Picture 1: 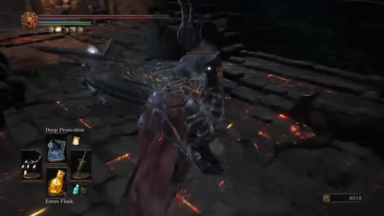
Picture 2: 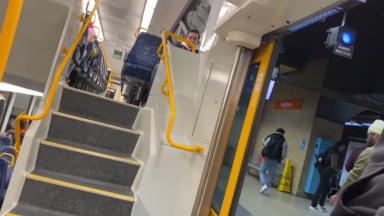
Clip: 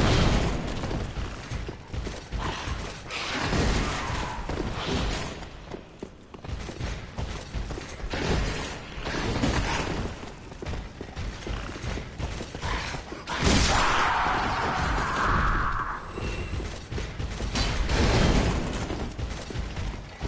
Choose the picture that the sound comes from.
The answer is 1